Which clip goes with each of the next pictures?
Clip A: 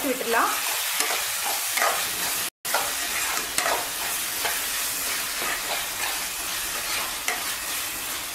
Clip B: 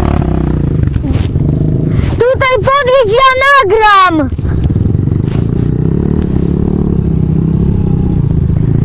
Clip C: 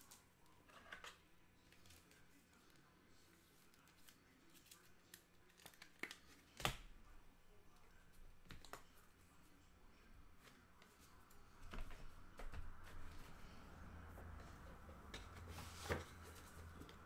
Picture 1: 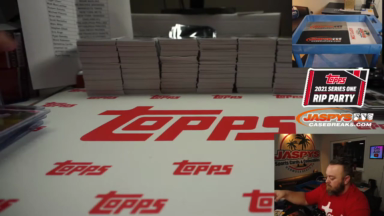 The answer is C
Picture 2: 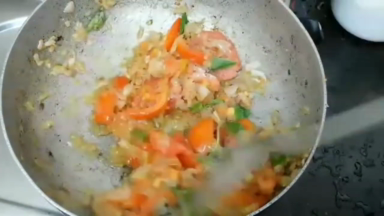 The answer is A